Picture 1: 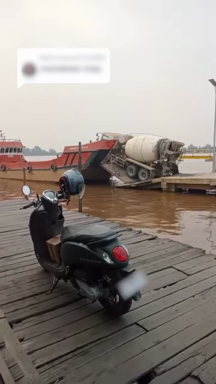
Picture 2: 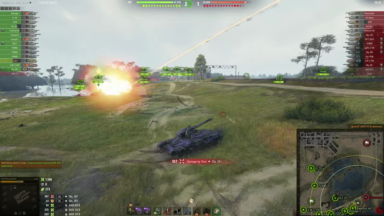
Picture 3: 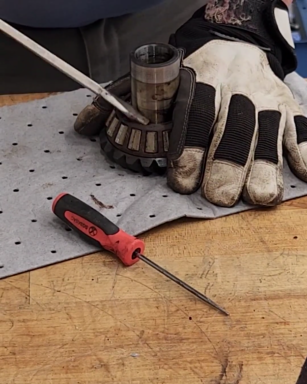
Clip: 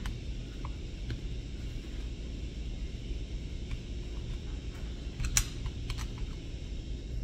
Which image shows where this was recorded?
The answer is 3